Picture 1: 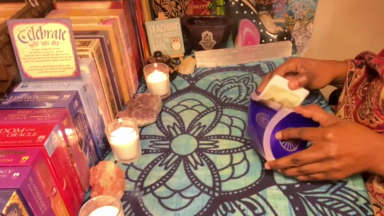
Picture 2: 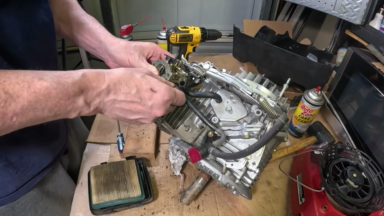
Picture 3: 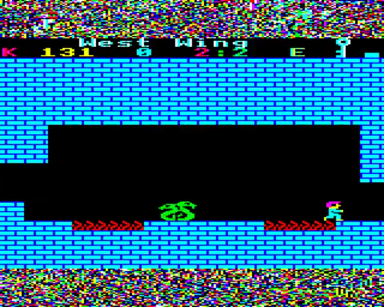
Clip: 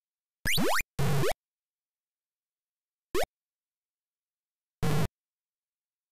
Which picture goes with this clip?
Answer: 3